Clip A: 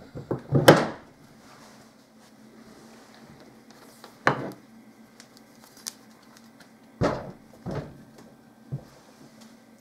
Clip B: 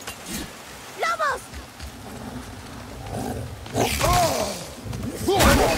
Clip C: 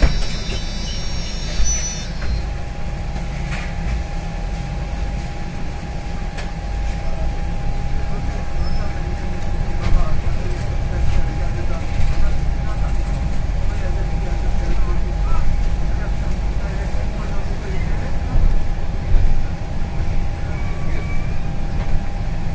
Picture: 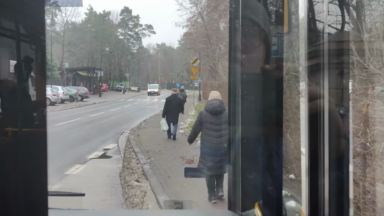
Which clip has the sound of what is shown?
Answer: C